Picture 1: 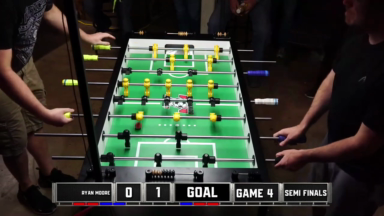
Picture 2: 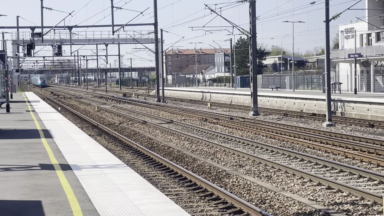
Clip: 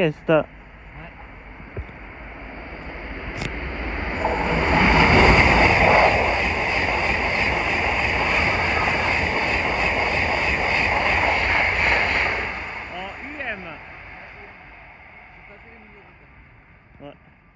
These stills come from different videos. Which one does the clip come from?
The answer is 2